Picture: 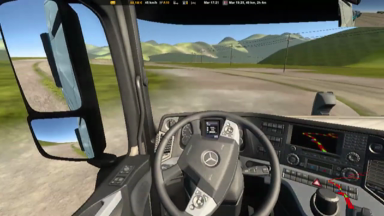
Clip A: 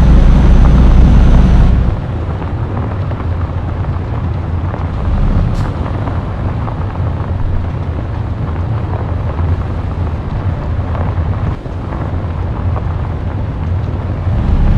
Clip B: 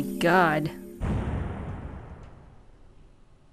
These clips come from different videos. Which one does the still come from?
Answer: A